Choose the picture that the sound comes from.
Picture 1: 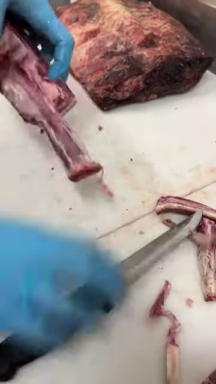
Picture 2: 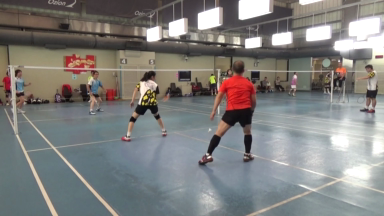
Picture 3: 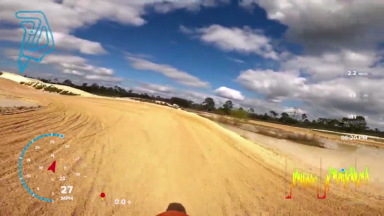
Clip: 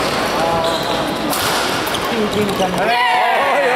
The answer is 2